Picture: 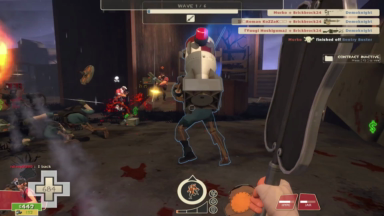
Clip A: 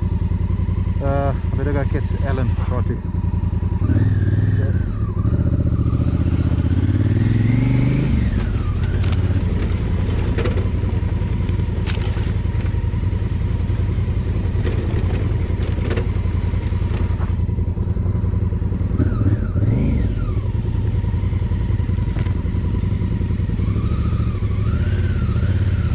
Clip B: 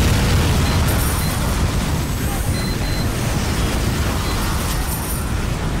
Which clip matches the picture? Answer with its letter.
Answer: B